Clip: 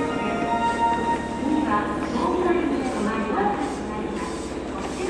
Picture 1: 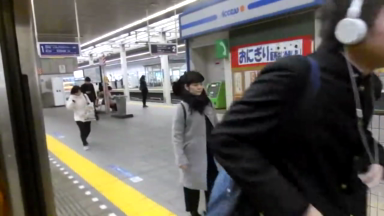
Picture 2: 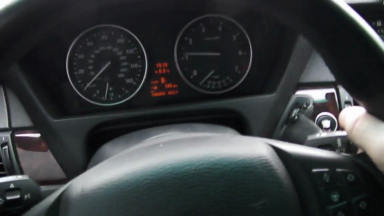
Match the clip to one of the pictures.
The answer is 1